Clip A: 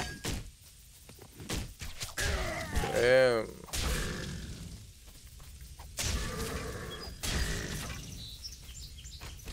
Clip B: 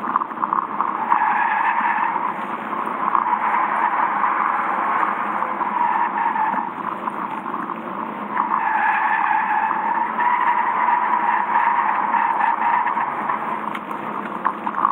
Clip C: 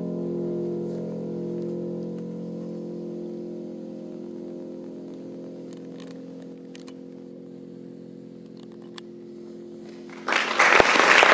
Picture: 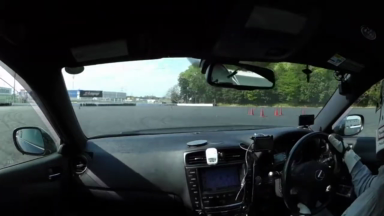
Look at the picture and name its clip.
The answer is B